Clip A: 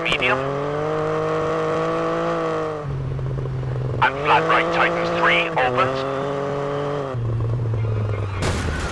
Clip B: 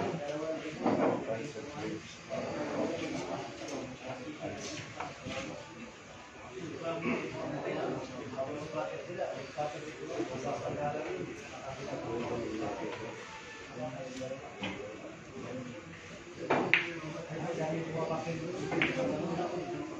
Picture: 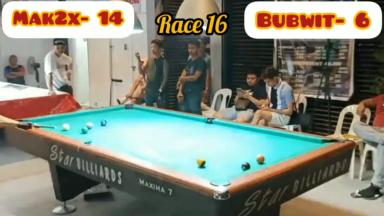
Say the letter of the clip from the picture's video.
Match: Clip B